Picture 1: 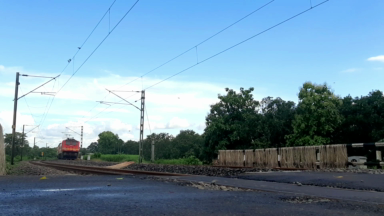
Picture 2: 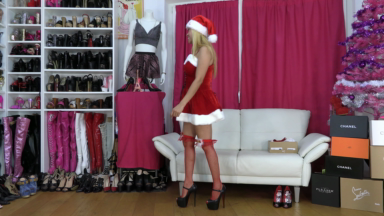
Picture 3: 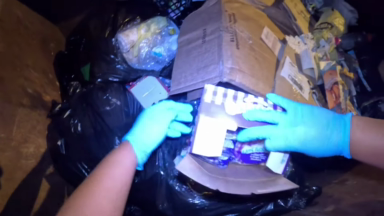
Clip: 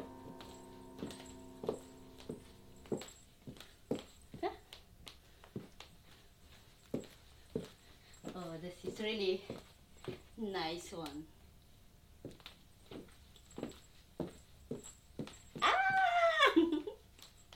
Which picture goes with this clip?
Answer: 2